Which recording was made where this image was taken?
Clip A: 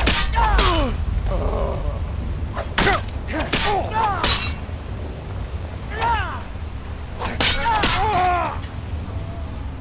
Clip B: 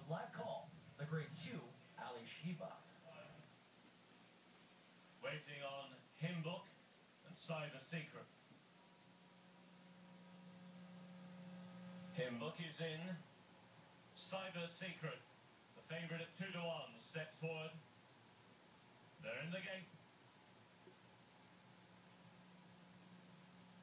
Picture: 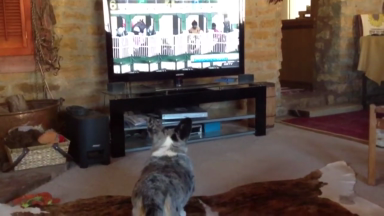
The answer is B